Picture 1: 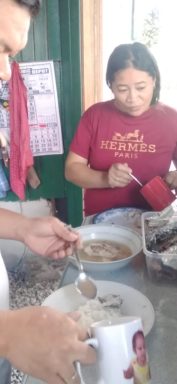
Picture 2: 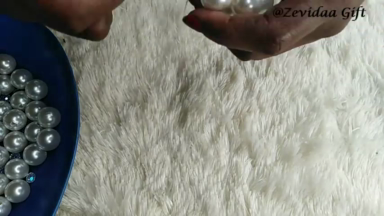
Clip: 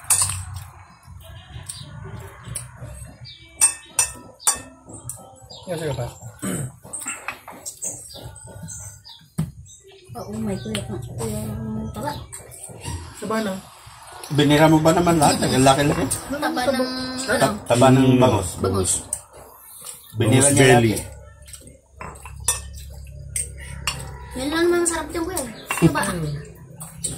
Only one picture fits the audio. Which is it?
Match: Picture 1